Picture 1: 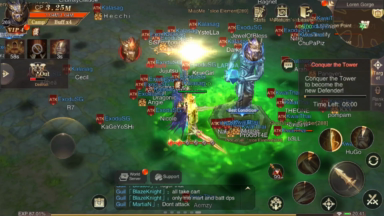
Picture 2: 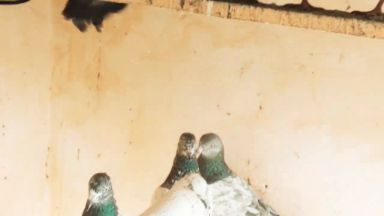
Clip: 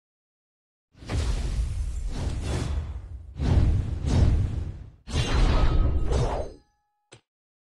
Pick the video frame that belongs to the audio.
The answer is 1